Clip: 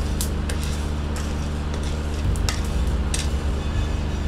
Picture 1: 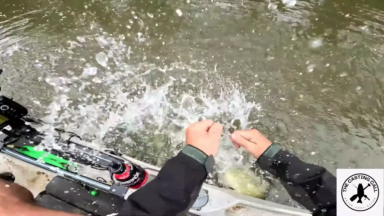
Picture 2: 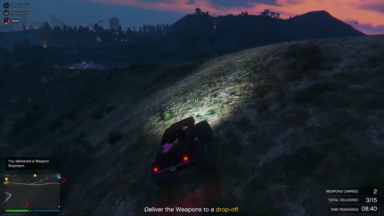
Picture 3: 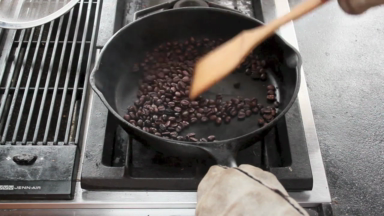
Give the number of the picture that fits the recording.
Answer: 3